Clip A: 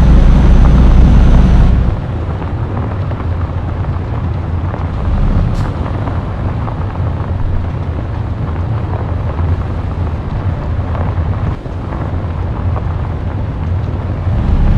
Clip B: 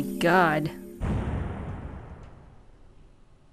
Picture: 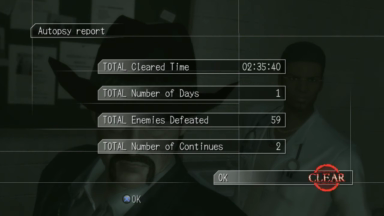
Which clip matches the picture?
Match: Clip B